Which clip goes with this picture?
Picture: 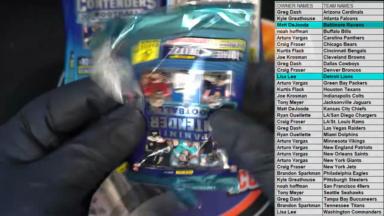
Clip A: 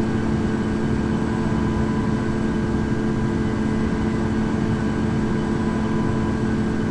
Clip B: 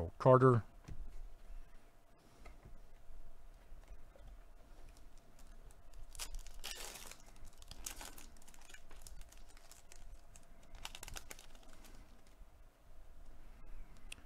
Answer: B